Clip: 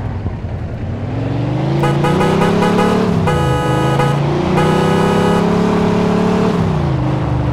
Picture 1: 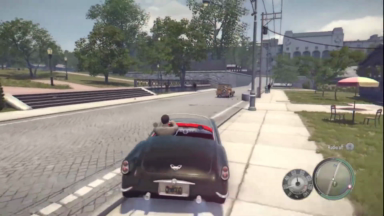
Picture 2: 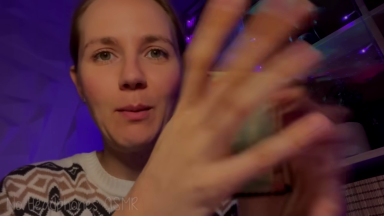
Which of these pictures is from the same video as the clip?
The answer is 1